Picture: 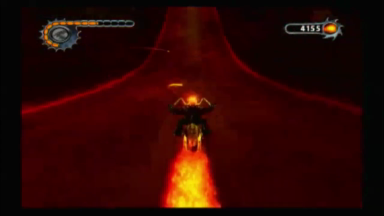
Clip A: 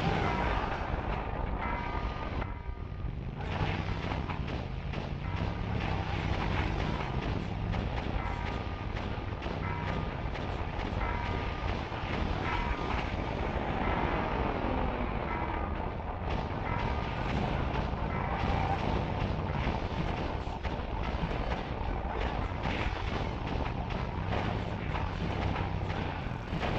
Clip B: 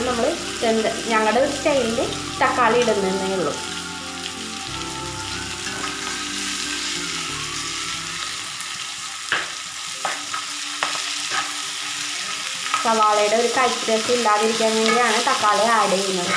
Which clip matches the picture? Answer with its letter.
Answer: A